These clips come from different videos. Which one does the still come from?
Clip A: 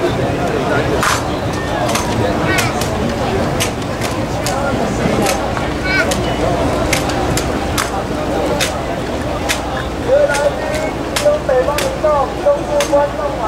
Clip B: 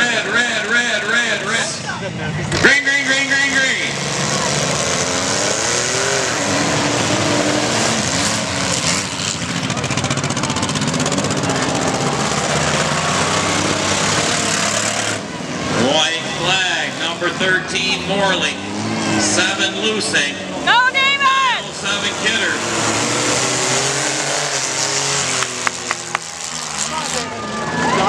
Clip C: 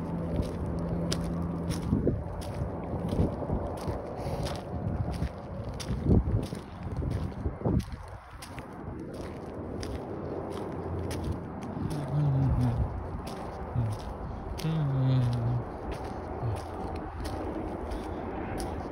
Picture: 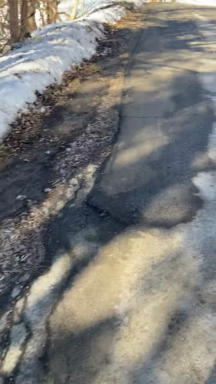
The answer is C